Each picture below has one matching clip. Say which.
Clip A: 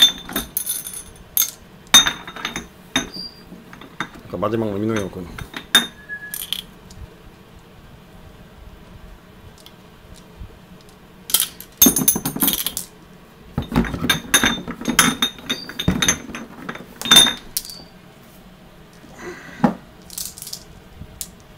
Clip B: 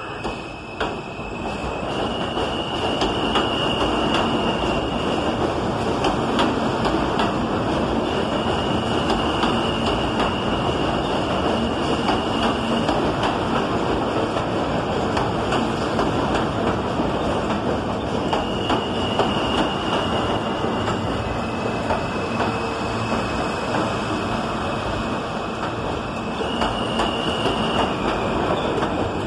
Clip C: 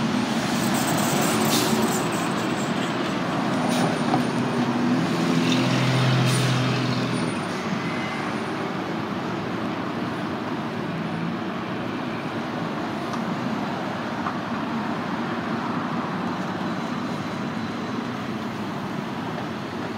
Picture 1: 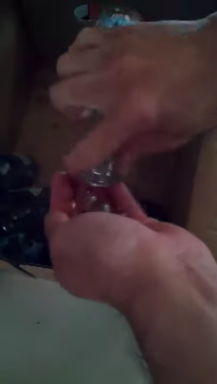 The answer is A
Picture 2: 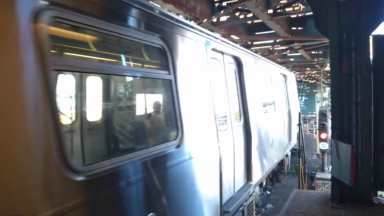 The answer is B